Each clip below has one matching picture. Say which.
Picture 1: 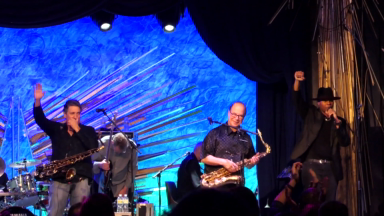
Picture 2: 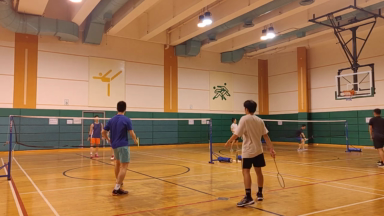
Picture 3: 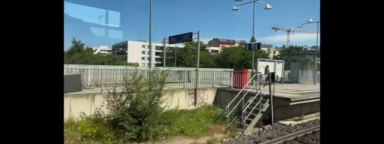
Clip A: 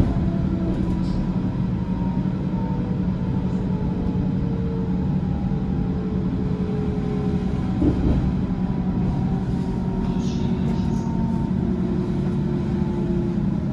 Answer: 3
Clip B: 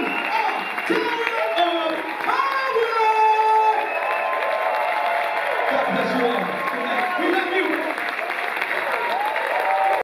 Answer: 1